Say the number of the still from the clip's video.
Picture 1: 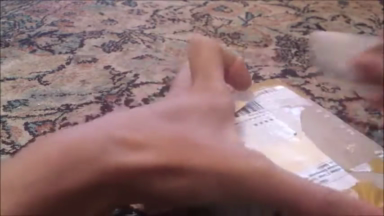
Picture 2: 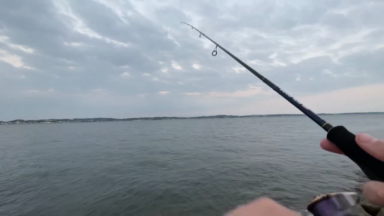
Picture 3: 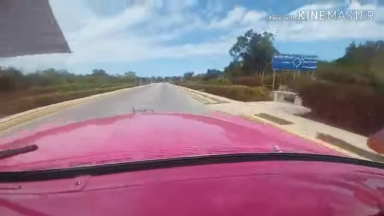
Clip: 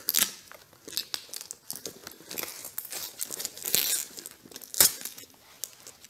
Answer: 1